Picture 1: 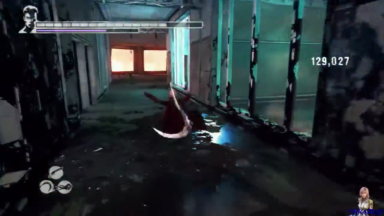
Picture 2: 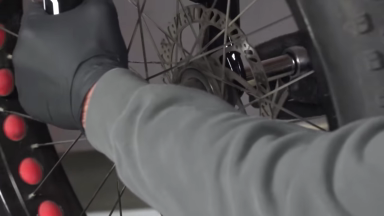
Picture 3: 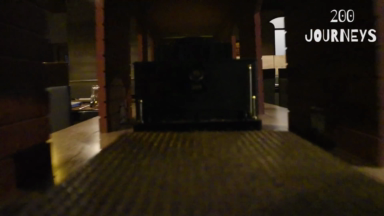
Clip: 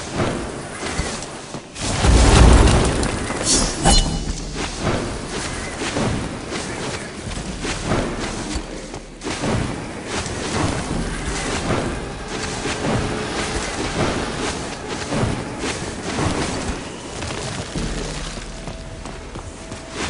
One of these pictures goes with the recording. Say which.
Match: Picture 1